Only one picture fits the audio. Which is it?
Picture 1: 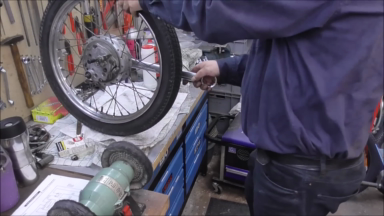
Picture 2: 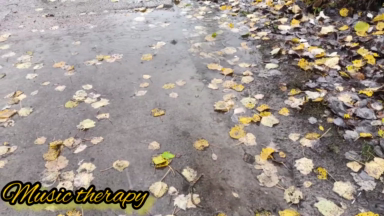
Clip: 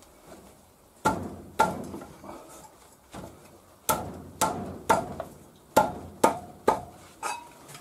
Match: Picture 1